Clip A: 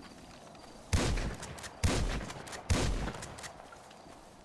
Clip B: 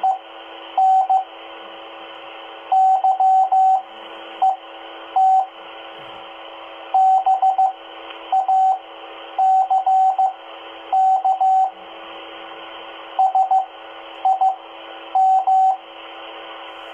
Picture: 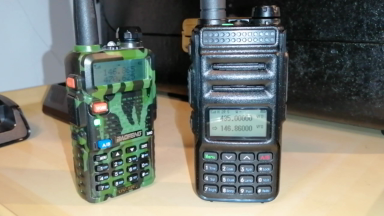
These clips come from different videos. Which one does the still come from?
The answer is B